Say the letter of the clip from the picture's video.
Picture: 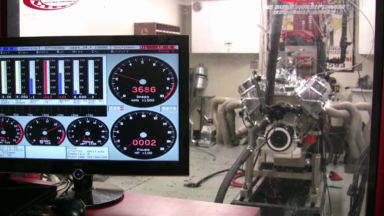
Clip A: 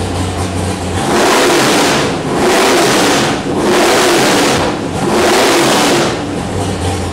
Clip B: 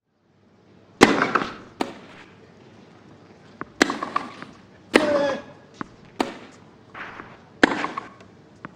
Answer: A